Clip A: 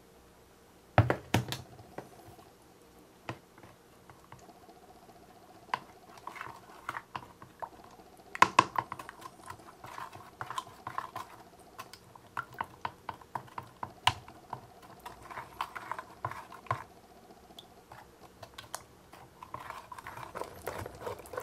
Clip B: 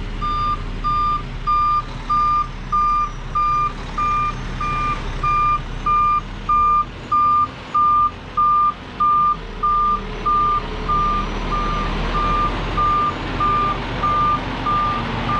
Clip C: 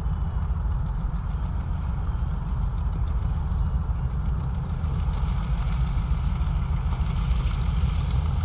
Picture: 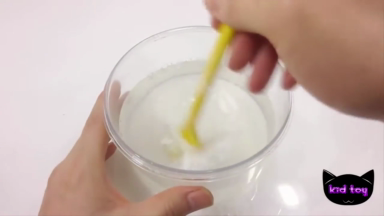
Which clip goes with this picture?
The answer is A